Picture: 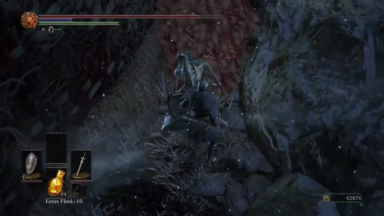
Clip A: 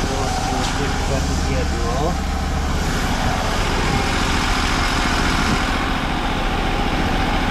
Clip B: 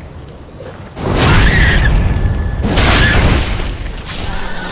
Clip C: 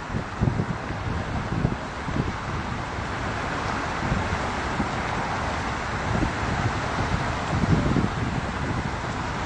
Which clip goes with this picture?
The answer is B